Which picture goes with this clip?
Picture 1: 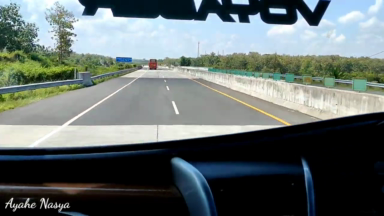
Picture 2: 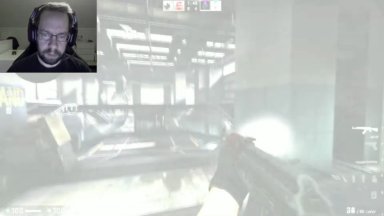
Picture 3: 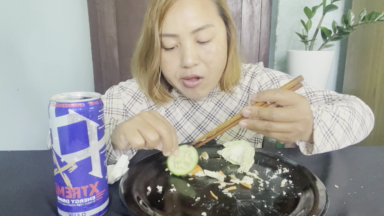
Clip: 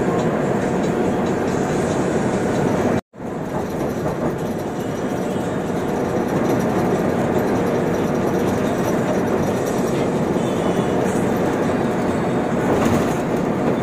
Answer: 1